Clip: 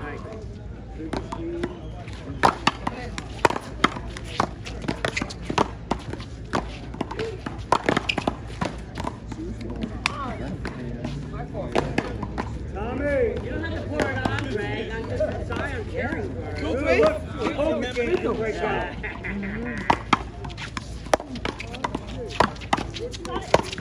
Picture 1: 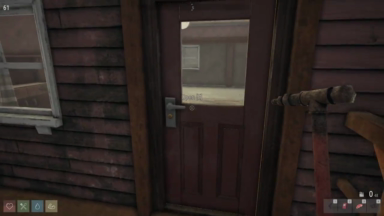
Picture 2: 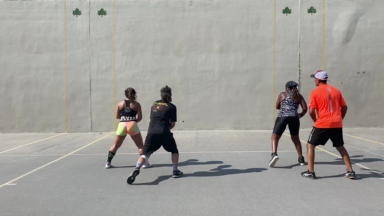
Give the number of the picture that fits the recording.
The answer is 2